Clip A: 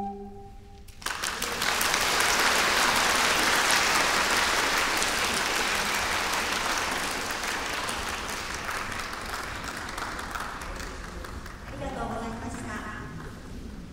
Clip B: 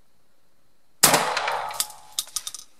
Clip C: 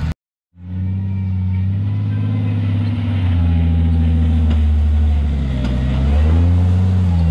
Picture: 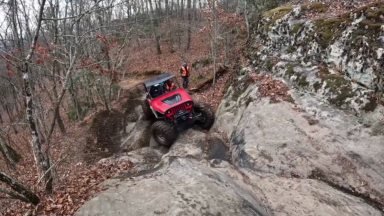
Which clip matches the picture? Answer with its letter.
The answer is C